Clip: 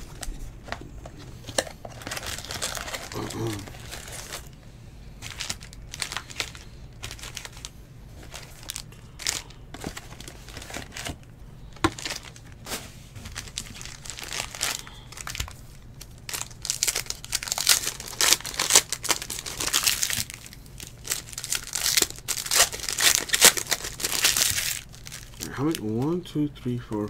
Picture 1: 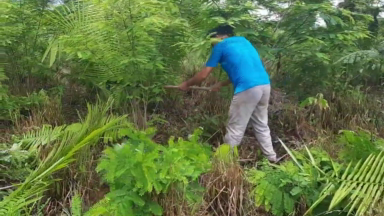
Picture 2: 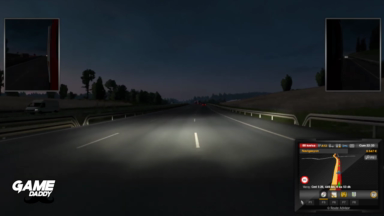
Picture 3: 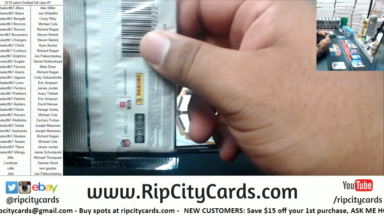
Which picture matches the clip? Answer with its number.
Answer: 3